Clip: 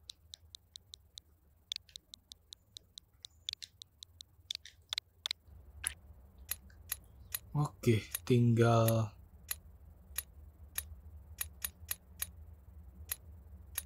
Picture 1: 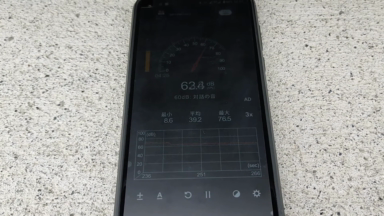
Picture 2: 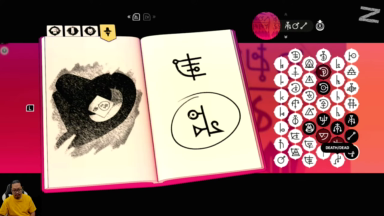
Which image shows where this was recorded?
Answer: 2